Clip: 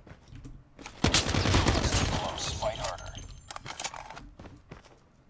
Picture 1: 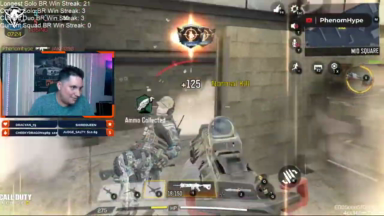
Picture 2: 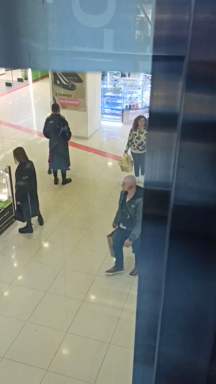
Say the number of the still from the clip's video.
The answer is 1